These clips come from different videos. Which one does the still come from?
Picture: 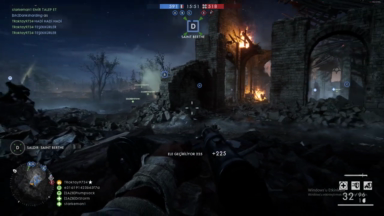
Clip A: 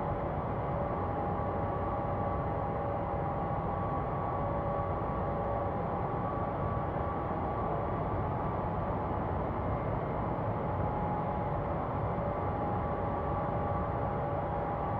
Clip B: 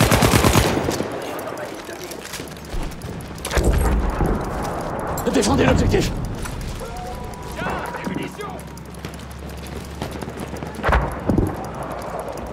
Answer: B